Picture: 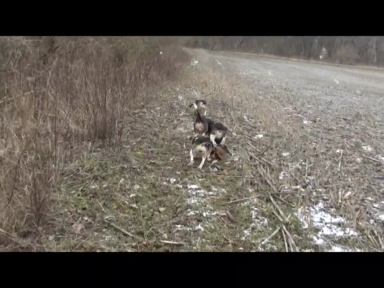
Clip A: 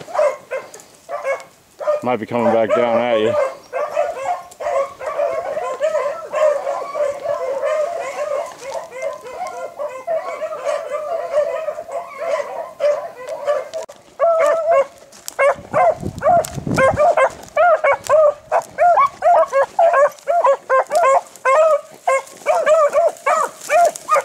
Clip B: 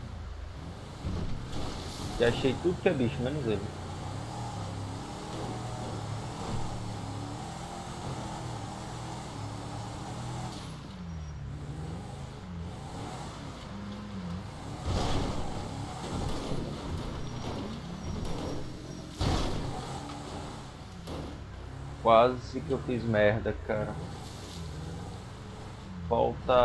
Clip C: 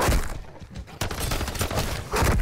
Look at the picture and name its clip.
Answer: A